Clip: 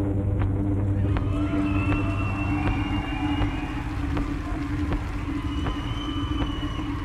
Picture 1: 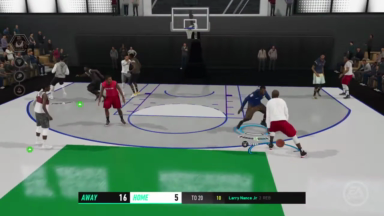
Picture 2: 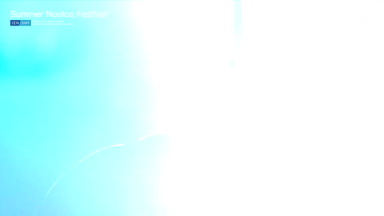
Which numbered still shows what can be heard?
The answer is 2